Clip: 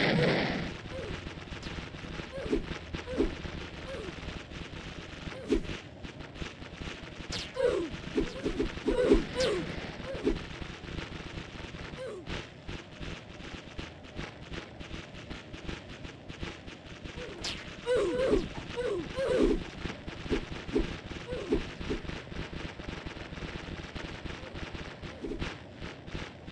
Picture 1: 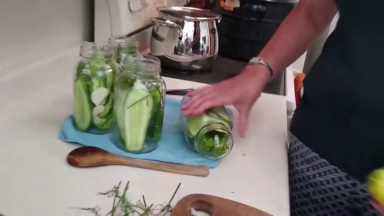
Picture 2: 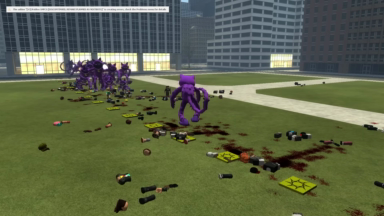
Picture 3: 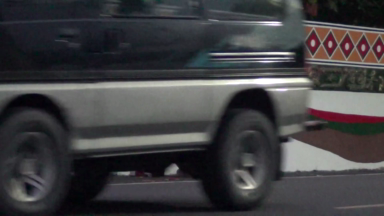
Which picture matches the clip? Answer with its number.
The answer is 2